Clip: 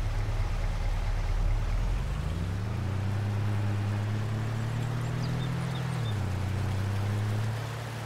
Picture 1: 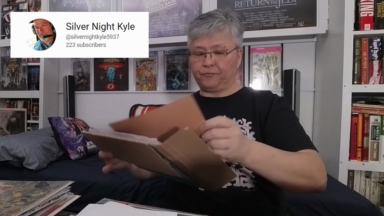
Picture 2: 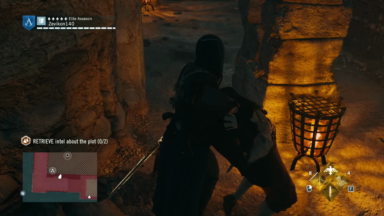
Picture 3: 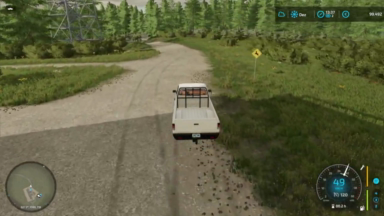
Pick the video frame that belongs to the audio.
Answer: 3